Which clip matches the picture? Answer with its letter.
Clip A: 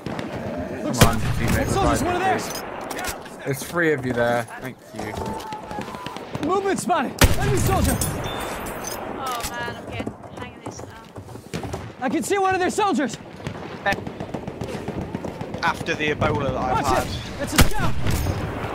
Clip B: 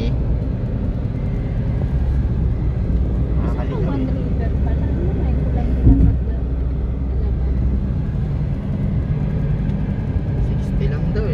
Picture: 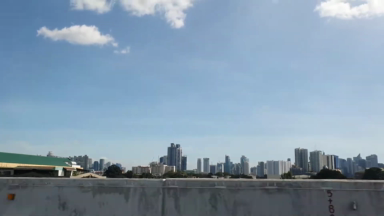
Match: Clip B